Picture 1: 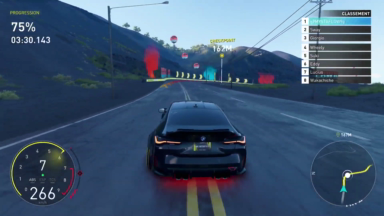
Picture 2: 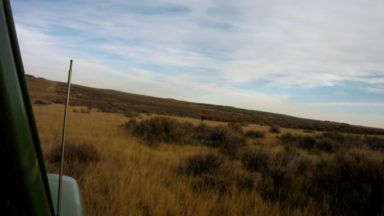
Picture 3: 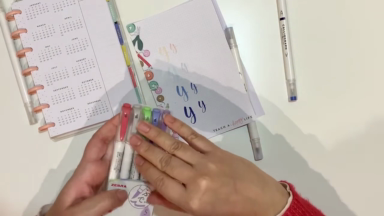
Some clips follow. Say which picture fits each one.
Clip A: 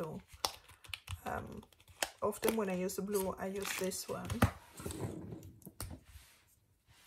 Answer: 3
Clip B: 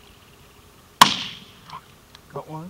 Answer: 2